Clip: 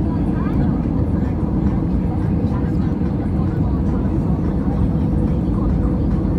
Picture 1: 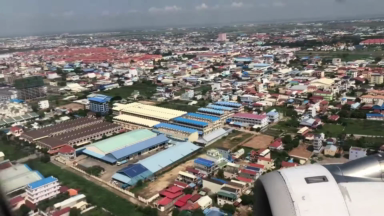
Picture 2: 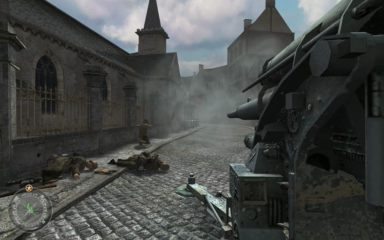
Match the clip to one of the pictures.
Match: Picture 1